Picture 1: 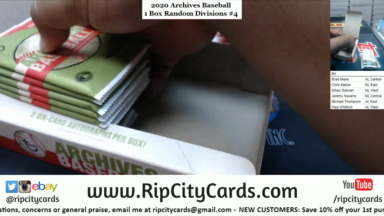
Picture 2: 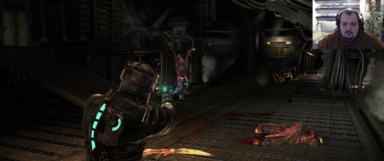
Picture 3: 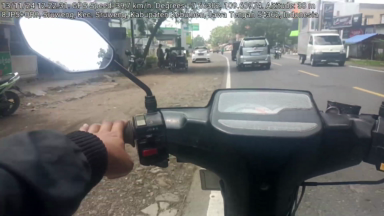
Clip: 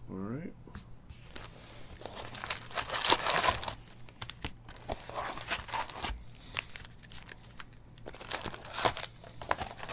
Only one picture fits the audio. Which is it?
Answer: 1